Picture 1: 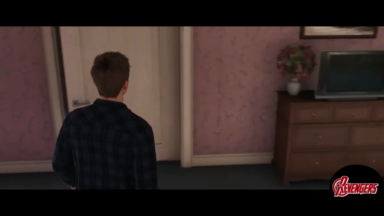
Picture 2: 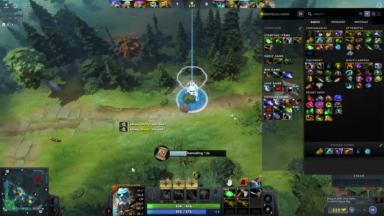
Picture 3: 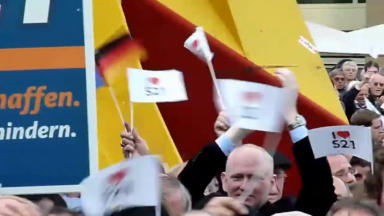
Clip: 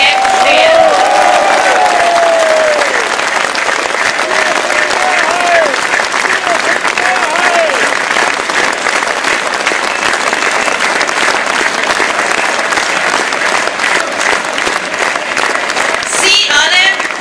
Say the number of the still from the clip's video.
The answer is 3